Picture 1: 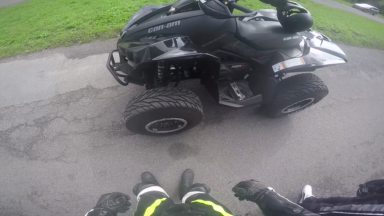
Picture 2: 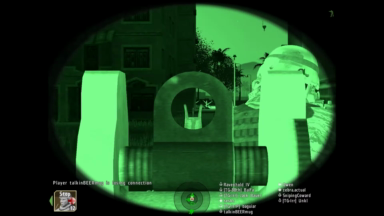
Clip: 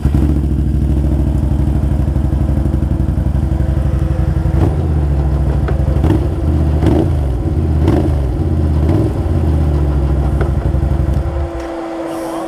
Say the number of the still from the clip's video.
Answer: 1